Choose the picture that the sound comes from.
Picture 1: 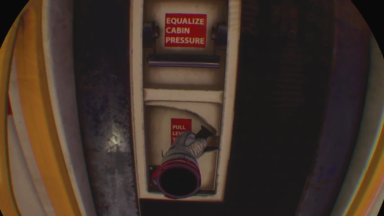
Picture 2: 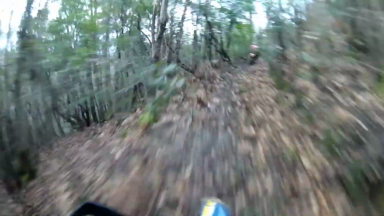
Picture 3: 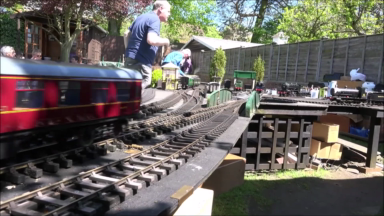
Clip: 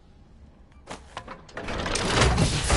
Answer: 1